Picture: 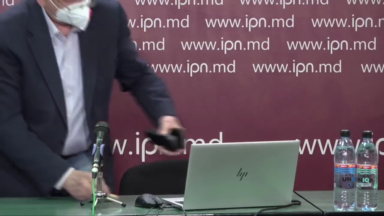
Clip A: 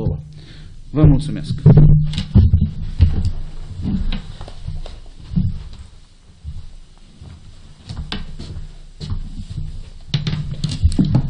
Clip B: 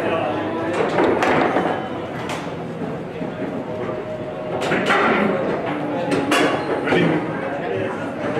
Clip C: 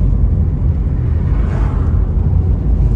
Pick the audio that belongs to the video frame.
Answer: A